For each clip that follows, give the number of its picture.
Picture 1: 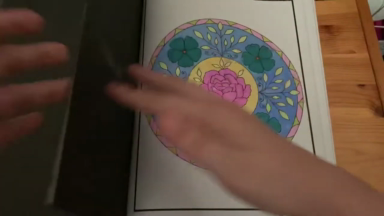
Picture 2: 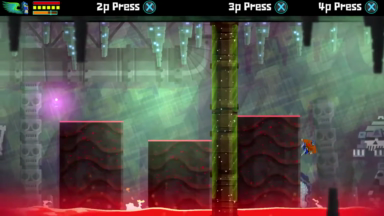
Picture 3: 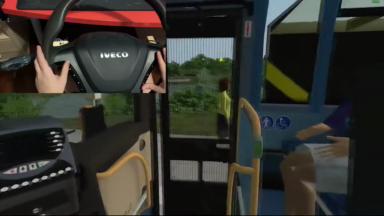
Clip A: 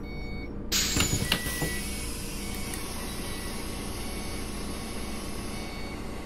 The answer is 3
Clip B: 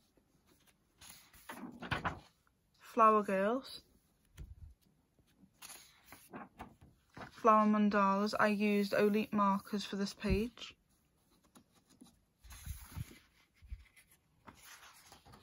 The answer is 1